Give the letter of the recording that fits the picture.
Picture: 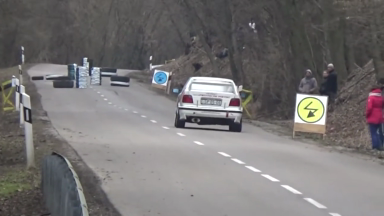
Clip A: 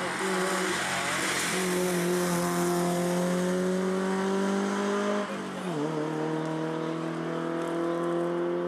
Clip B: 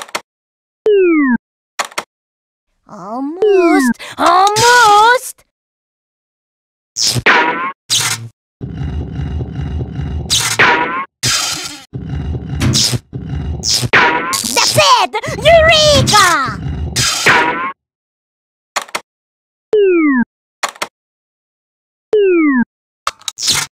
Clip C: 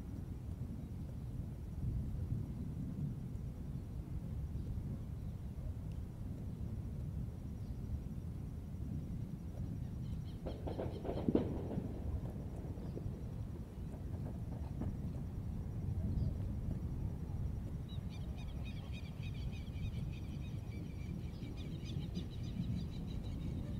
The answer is A